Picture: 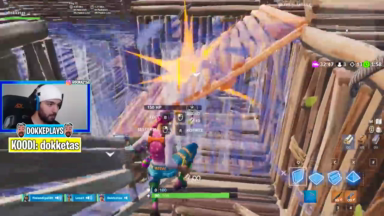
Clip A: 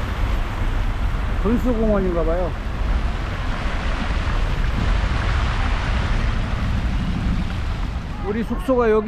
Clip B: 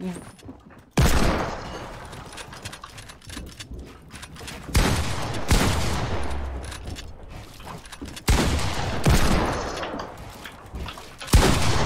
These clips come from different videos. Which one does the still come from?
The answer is B